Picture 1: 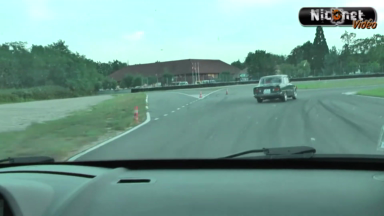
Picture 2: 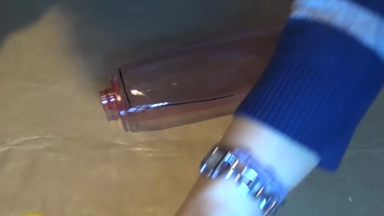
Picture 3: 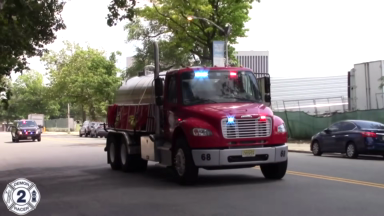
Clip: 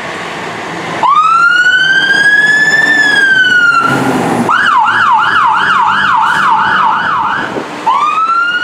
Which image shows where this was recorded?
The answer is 3